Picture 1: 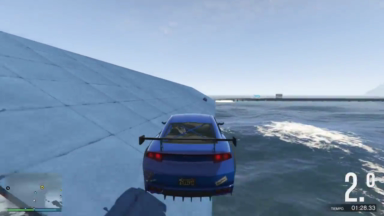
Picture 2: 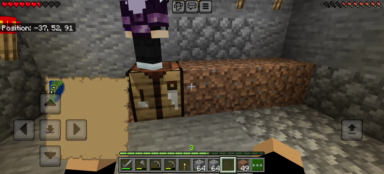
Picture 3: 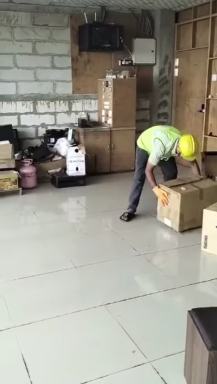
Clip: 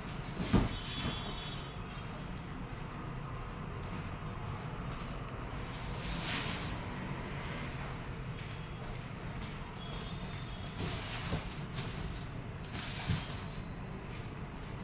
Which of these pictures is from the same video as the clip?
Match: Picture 3